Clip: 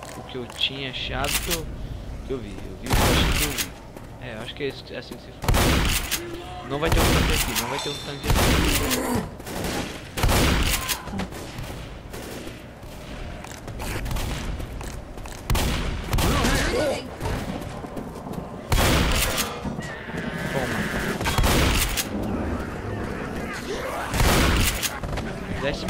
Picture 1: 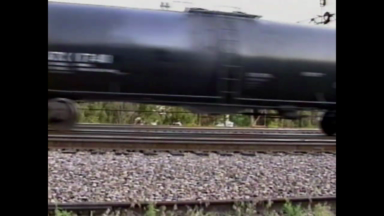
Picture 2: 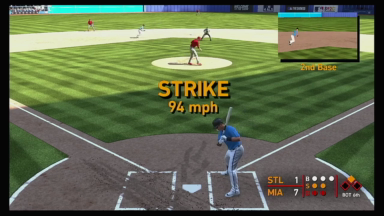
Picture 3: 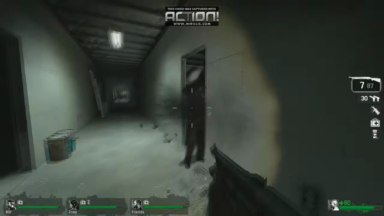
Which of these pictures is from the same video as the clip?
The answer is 3